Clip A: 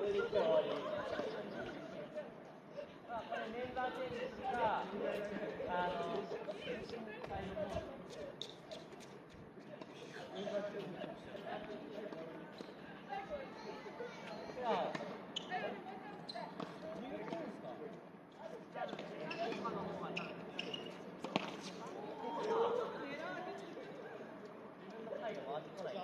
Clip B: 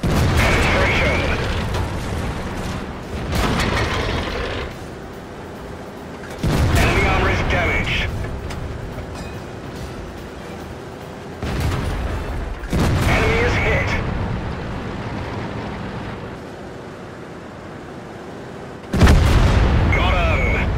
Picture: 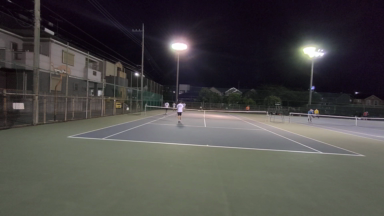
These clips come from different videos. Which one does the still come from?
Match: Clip A